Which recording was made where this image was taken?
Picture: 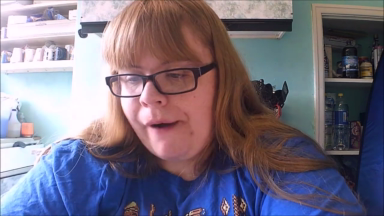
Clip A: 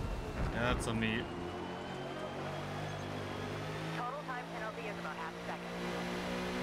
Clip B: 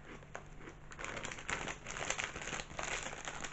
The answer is B